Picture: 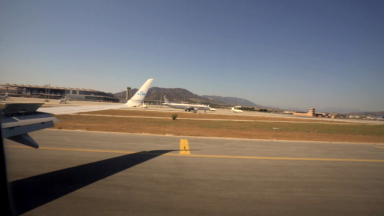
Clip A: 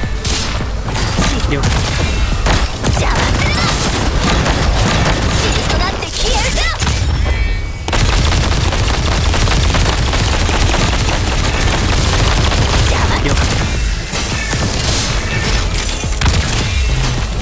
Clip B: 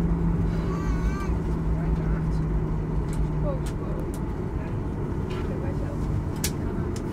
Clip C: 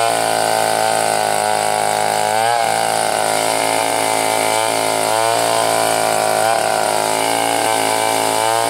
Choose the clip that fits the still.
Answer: B